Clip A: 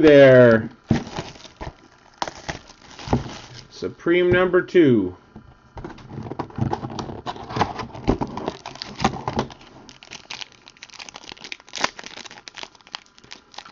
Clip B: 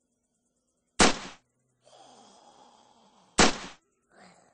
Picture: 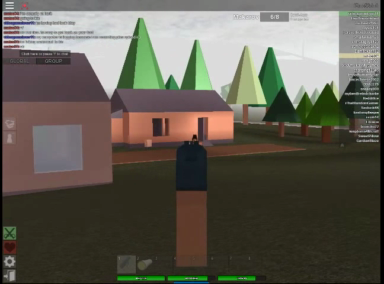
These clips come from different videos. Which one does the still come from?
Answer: B